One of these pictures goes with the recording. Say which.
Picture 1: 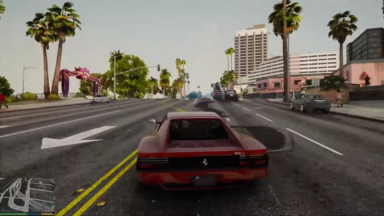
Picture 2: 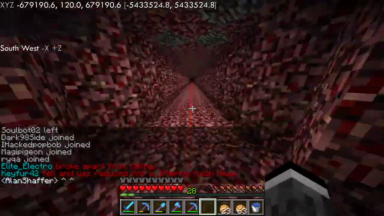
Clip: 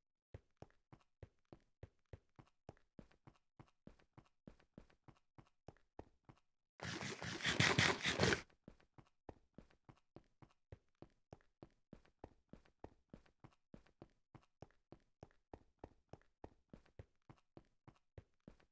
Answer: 2